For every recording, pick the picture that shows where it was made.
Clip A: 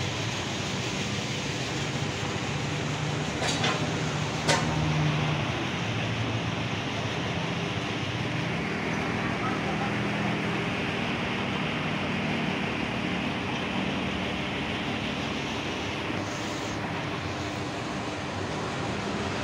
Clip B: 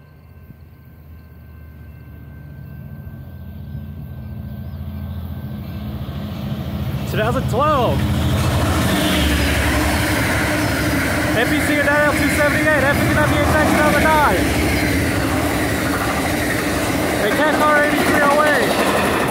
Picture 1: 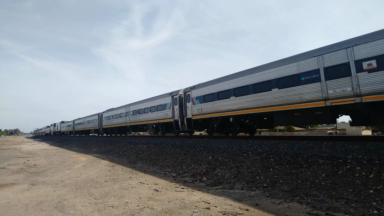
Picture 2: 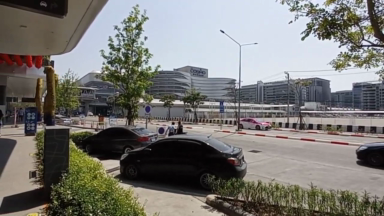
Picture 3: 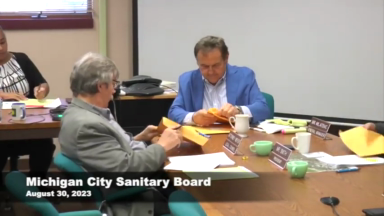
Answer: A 2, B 1